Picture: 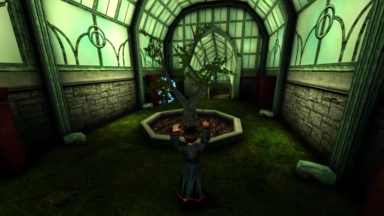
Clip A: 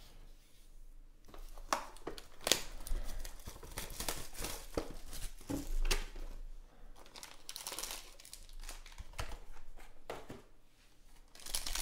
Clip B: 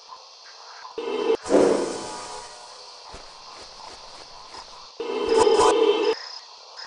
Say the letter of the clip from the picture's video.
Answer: B